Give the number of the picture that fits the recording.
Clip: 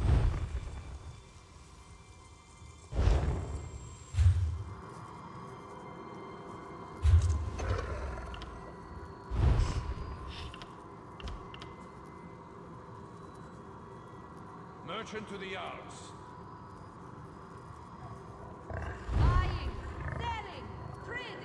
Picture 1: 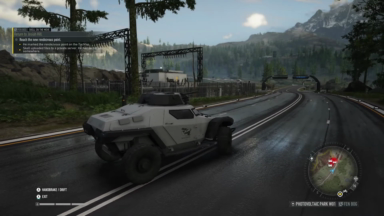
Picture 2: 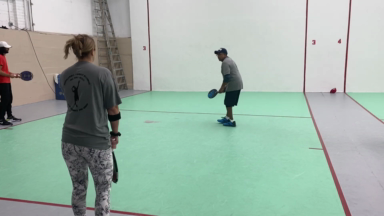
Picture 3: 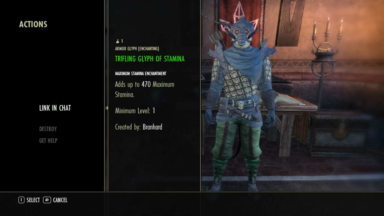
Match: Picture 3